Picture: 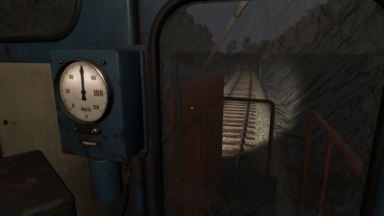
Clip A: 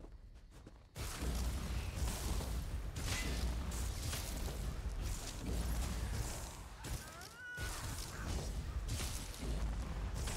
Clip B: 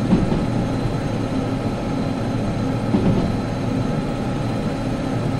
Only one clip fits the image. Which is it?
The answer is B